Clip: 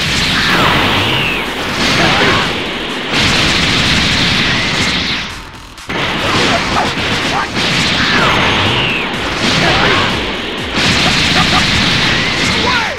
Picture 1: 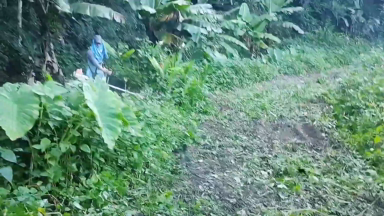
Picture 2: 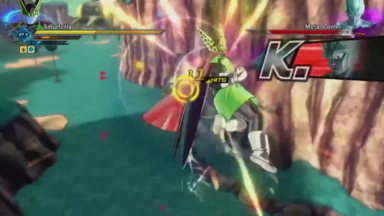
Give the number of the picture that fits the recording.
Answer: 2